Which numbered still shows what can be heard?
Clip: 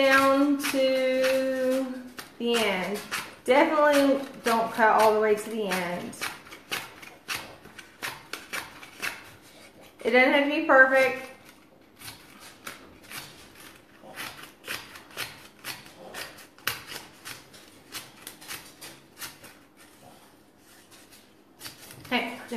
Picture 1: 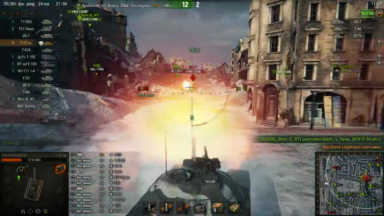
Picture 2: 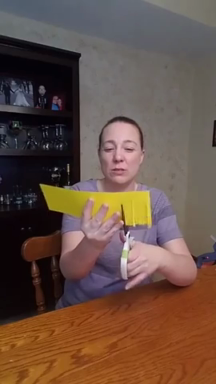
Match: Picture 2